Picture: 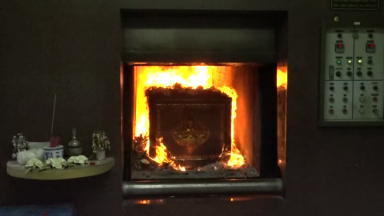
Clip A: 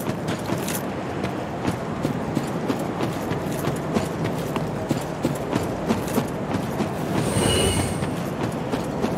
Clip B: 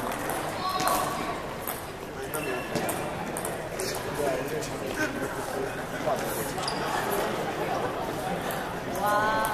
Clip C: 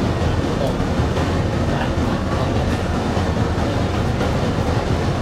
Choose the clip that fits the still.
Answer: C